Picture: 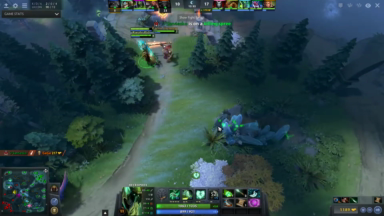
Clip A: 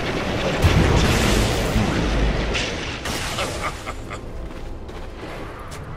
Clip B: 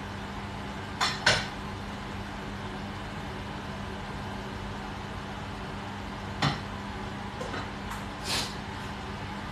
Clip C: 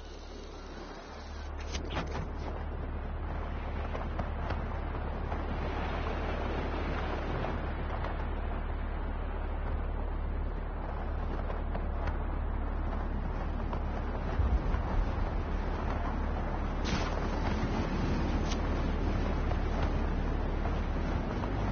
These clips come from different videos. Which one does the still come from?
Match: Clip A